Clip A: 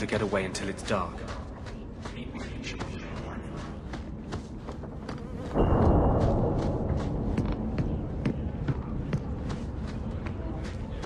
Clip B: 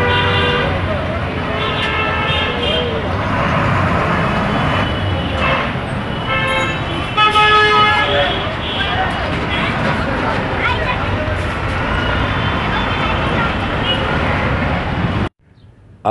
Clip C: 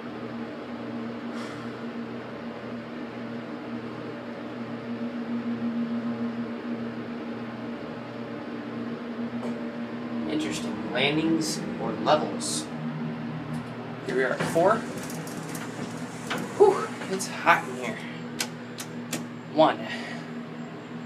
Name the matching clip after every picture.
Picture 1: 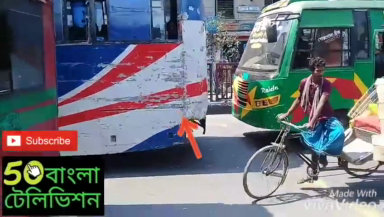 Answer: B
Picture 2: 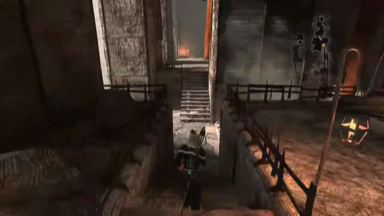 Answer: A